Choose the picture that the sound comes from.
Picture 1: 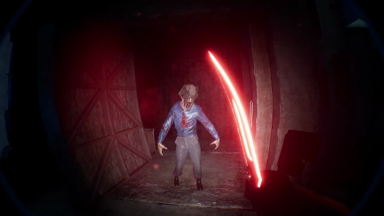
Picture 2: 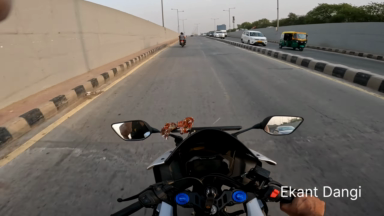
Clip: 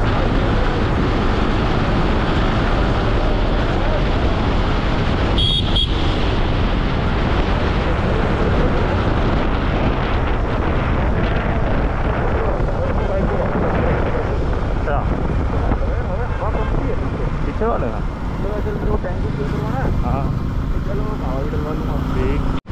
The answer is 2